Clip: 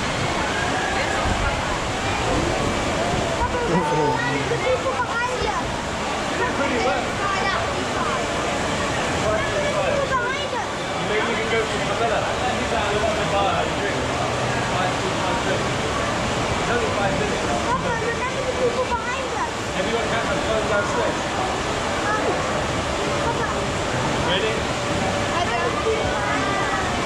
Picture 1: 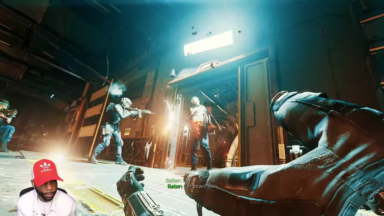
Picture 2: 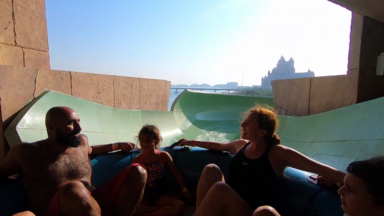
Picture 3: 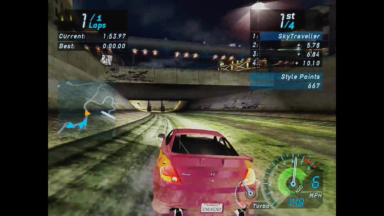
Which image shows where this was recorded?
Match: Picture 2